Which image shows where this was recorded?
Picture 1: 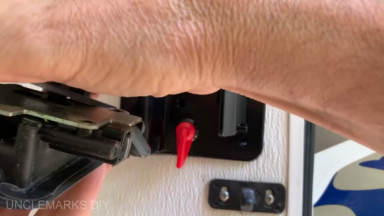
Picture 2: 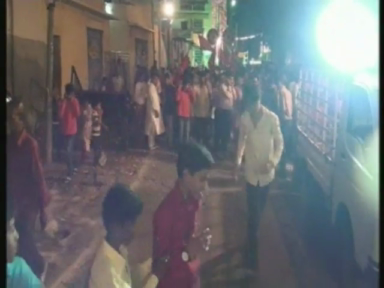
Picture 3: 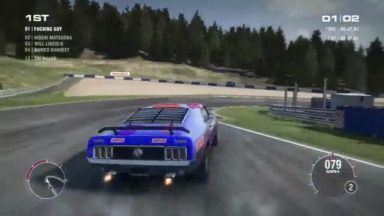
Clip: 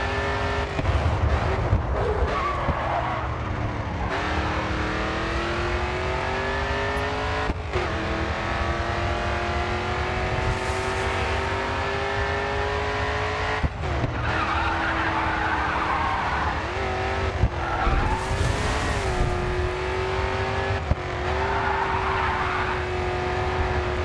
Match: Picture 3